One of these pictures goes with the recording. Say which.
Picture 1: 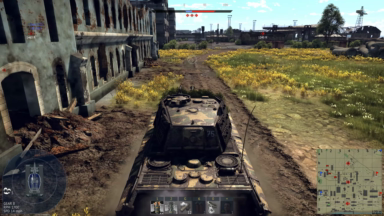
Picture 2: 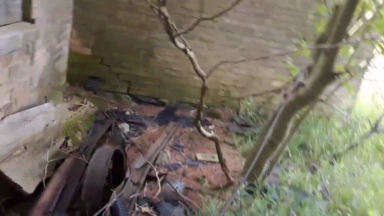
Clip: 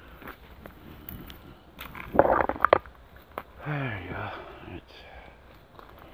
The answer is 2